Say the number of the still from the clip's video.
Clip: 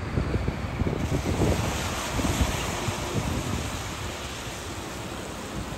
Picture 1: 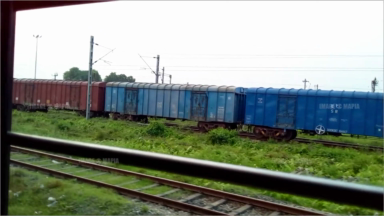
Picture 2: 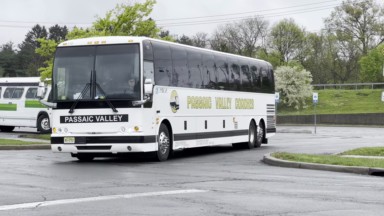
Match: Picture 2